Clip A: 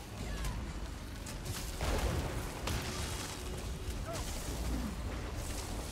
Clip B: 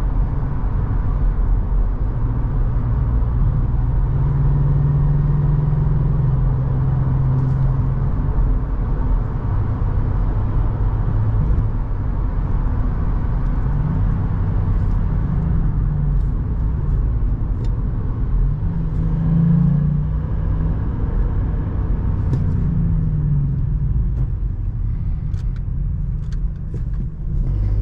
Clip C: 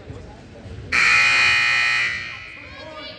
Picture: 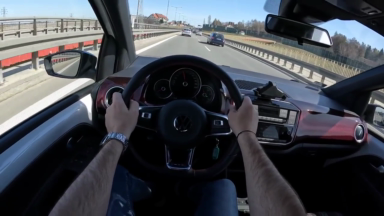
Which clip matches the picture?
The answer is B